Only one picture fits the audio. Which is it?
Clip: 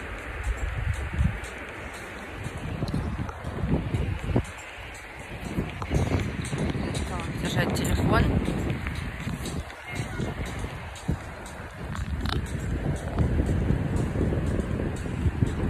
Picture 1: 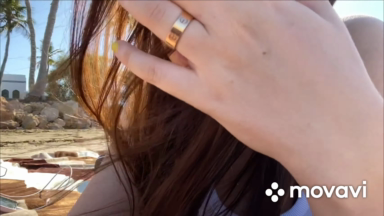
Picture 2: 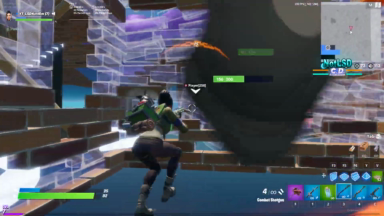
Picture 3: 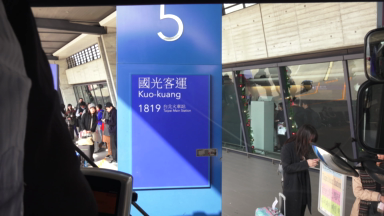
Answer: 1